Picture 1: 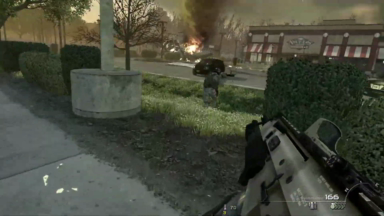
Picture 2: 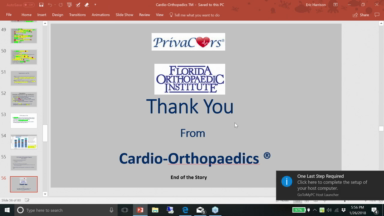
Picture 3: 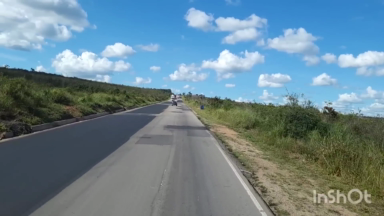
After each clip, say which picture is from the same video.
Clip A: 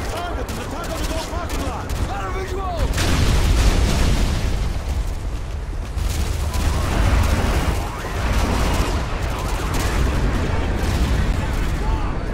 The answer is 1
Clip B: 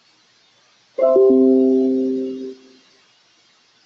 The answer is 2